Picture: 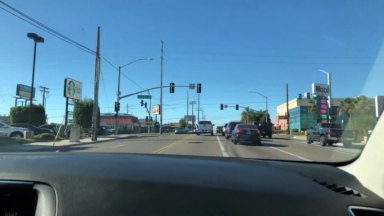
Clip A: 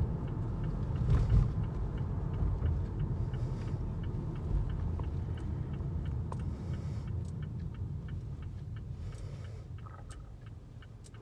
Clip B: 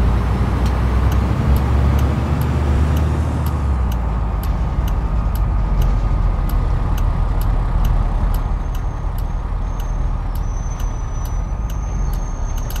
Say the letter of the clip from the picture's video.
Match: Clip A